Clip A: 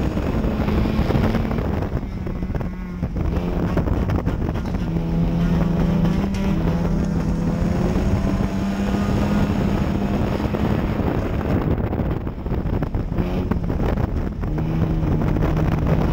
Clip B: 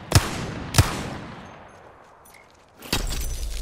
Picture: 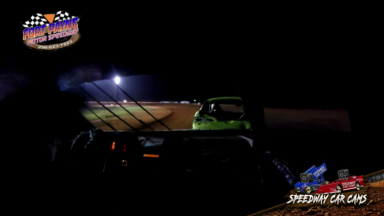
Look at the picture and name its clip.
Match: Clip A